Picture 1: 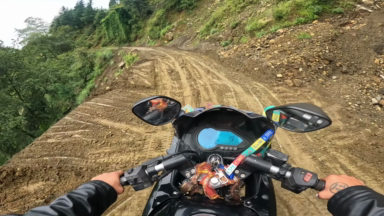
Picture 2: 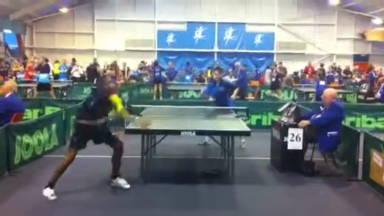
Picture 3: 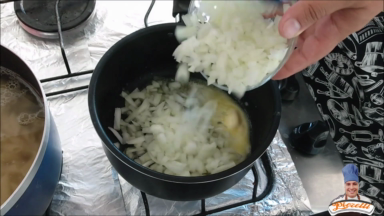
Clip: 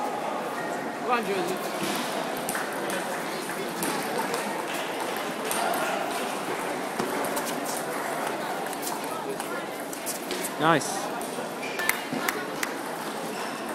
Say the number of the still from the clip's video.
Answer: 2